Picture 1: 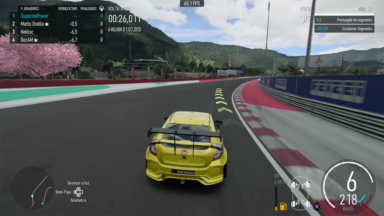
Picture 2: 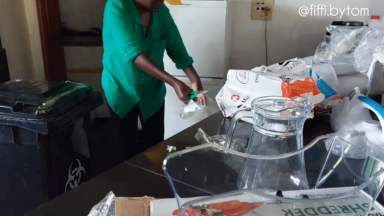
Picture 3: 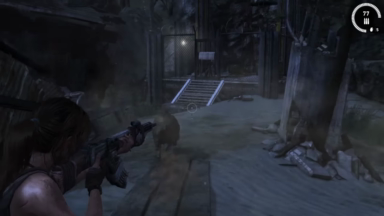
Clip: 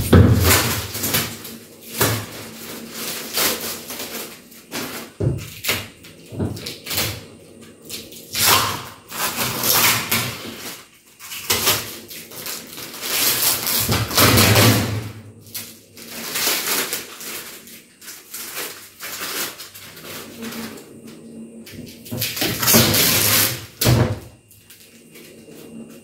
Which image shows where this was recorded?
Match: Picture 2